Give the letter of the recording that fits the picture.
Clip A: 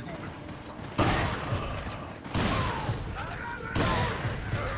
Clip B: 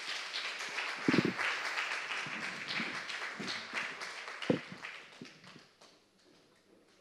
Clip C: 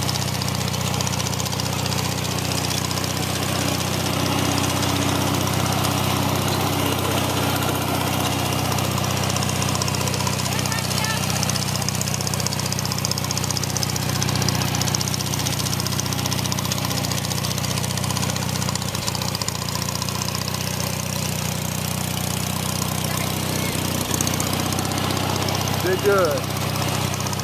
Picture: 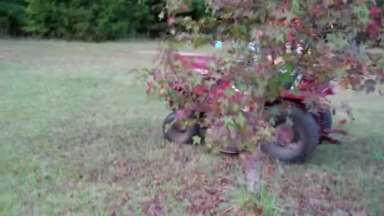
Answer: C